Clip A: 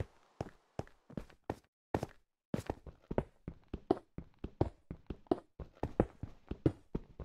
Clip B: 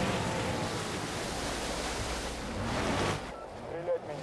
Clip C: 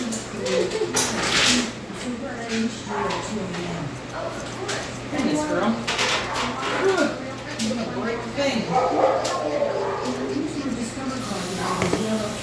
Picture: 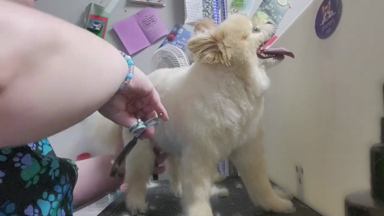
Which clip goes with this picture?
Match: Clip C